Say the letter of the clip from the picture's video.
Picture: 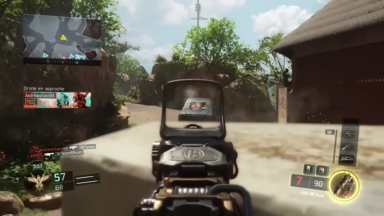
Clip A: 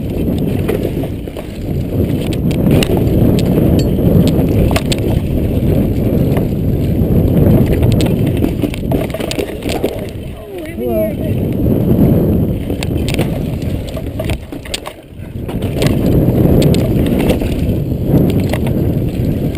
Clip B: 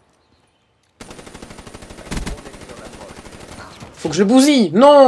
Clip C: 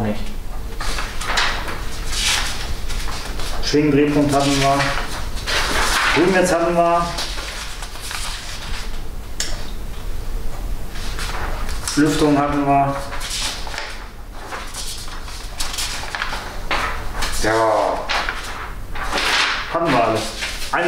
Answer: B